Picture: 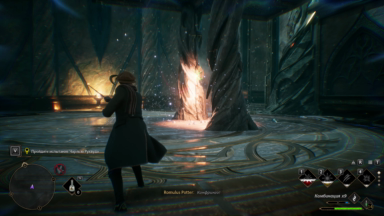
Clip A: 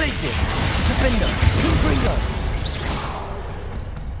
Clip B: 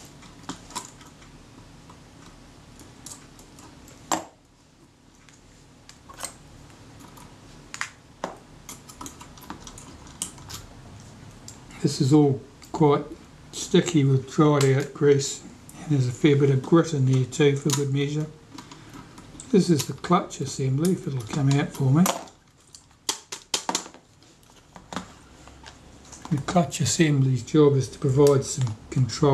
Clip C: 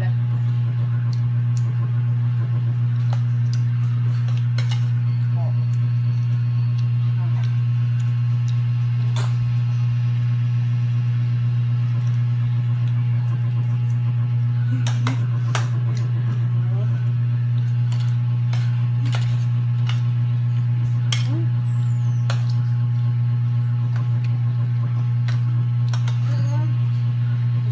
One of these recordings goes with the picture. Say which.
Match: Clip A